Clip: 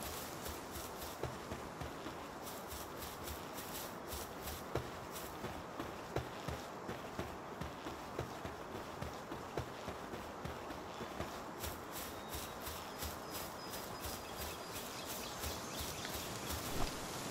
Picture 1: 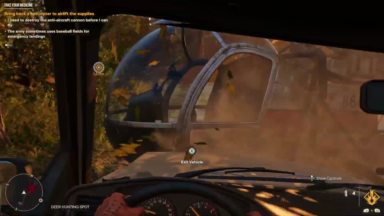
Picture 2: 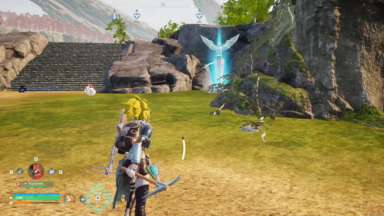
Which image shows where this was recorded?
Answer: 2